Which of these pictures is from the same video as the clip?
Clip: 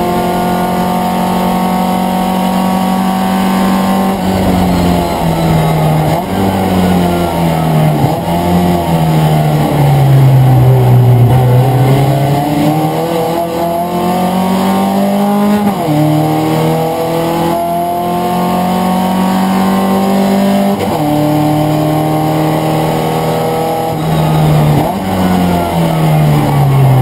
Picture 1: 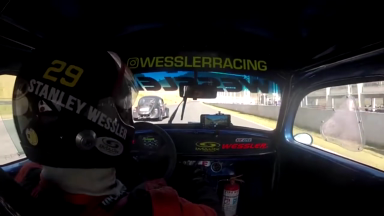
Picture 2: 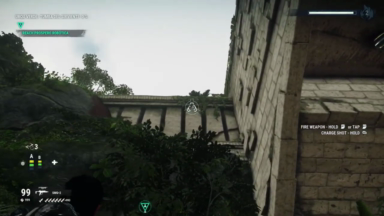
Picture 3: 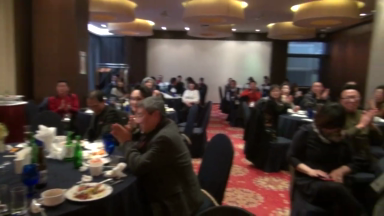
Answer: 1